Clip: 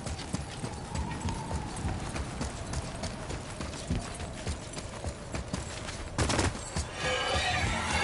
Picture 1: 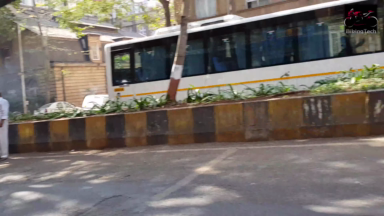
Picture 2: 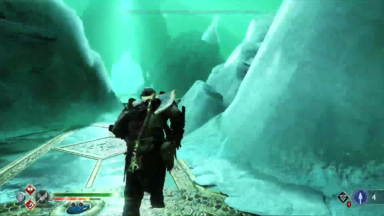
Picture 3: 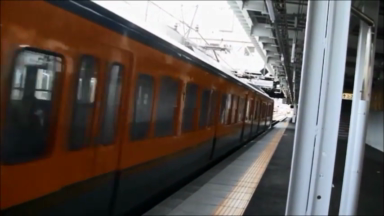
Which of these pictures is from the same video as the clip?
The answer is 2